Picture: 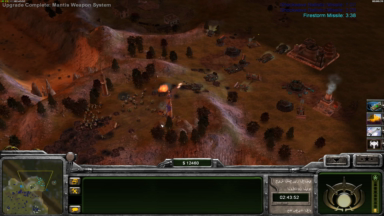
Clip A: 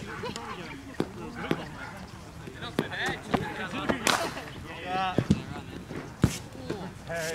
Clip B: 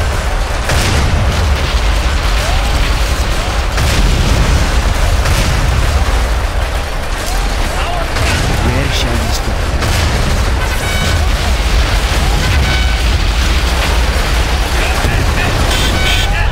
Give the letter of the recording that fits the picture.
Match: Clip B